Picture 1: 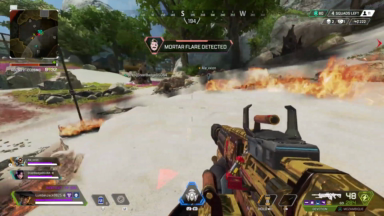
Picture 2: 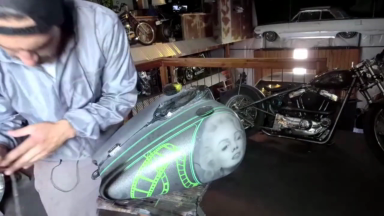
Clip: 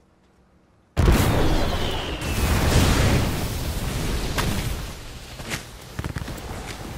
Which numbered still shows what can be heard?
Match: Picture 1